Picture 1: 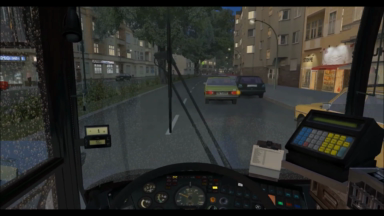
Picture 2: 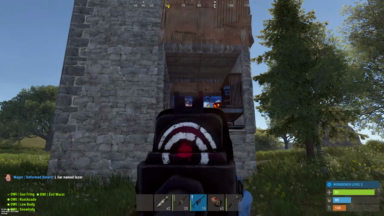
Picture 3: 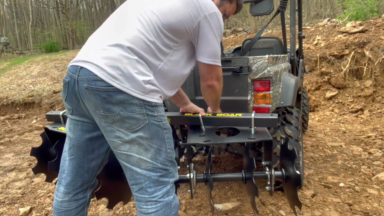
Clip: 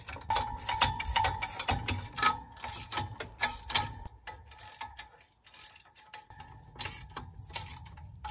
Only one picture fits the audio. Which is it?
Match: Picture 3